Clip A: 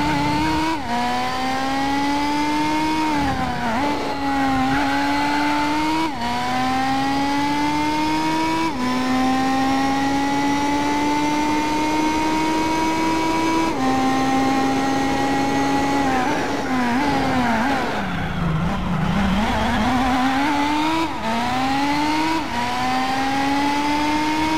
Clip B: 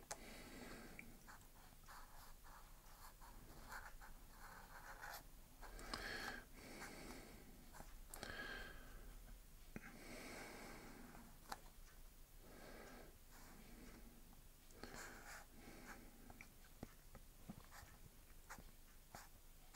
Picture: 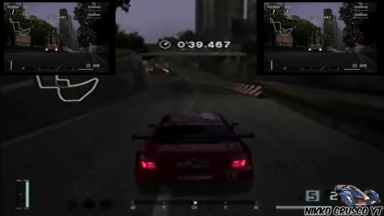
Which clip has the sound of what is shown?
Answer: A